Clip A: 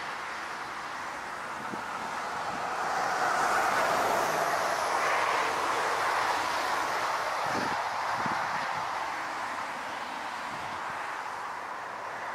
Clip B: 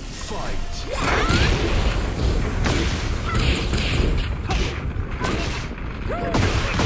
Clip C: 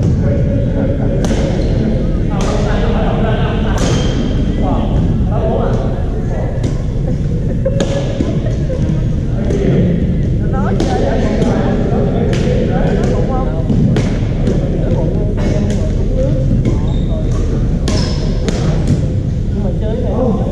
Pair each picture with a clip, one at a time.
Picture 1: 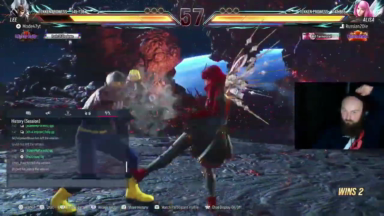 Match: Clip B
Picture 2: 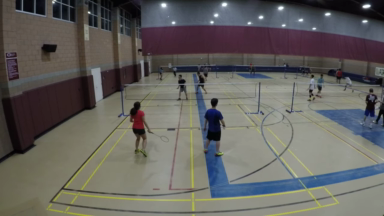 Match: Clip C